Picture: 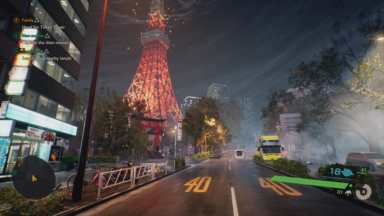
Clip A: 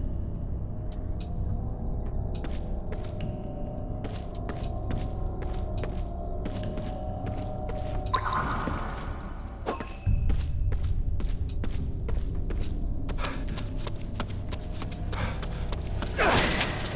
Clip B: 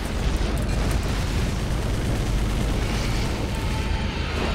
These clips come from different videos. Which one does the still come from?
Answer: A